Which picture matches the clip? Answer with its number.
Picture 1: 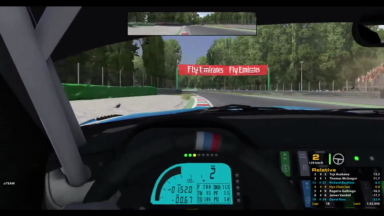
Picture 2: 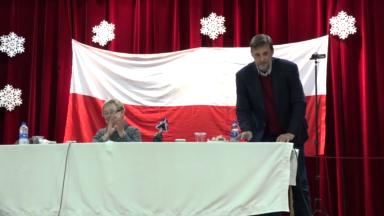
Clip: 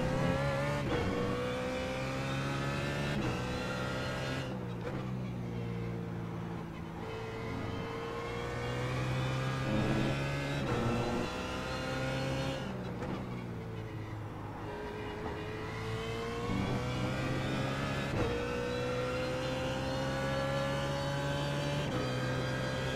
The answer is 1